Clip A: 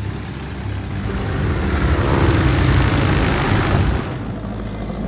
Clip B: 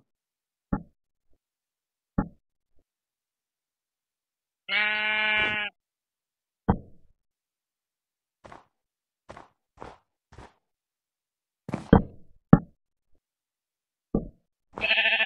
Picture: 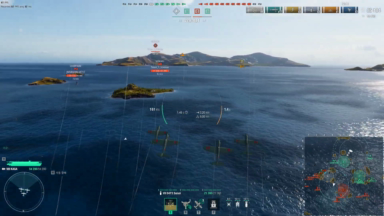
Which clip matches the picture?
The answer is A